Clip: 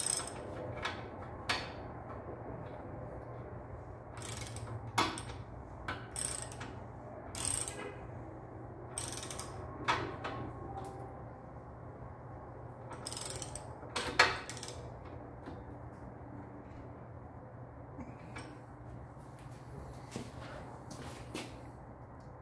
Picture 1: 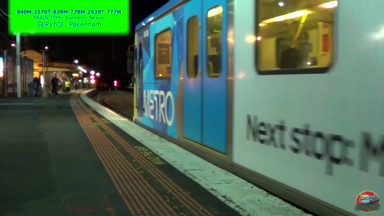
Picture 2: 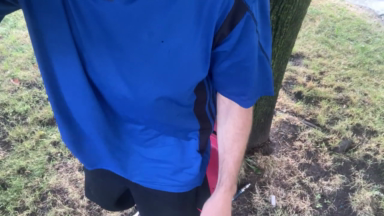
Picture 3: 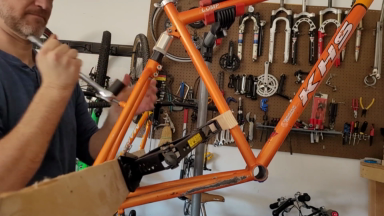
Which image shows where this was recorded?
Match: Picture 3